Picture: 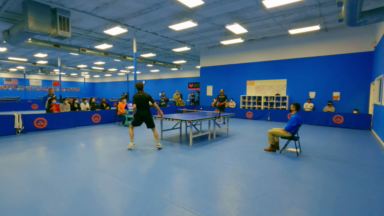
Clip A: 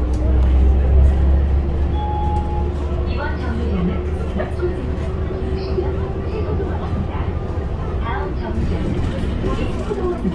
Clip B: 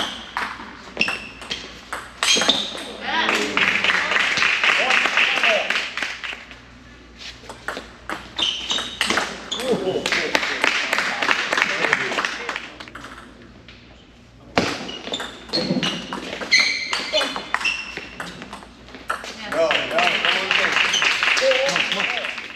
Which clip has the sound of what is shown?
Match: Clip B